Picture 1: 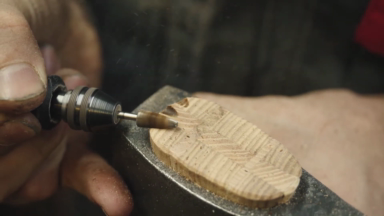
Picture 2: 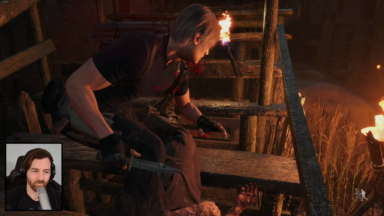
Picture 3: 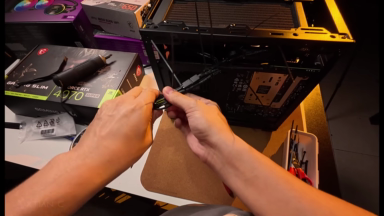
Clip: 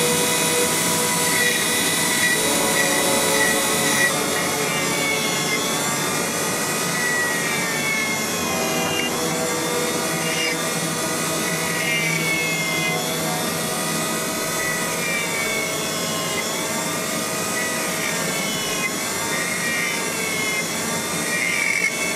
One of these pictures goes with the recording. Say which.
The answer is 1